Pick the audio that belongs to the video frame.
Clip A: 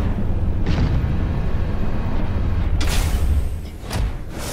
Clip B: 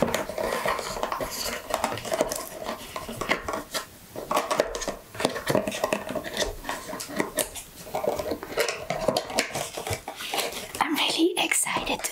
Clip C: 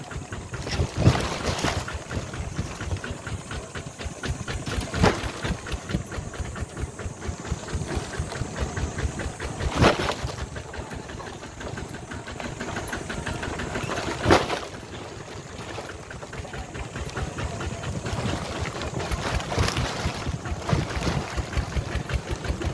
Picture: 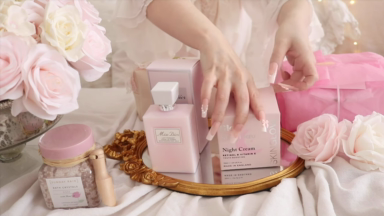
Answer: B